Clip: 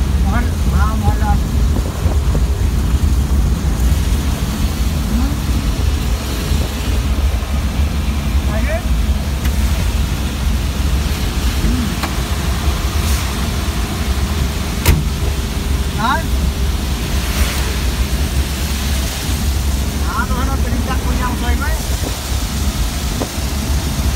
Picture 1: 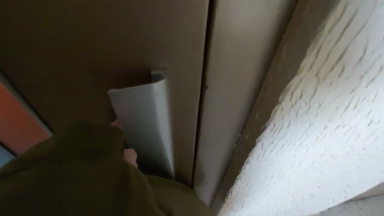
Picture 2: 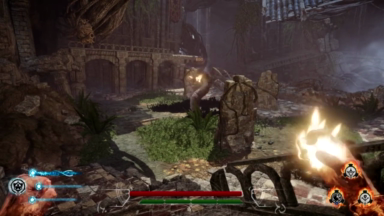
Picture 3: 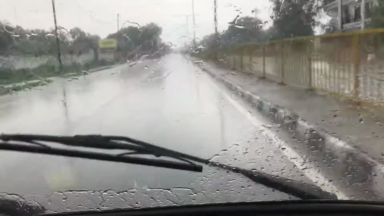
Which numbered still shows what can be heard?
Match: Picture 3